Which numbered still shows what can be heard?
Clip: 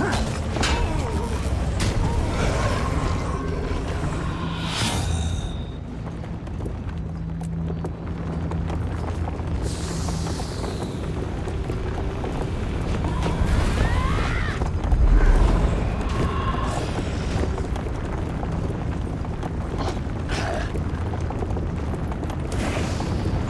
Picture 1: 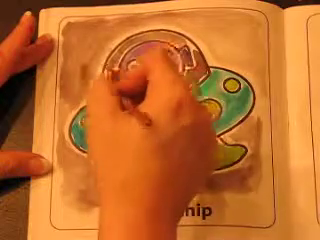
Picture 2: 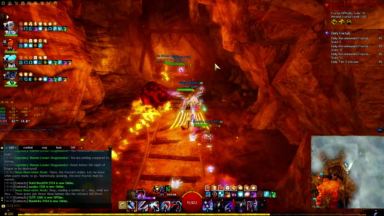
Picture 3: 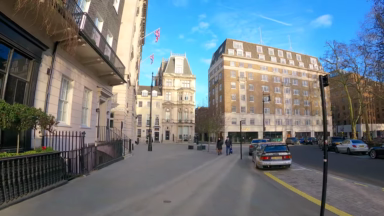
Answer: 2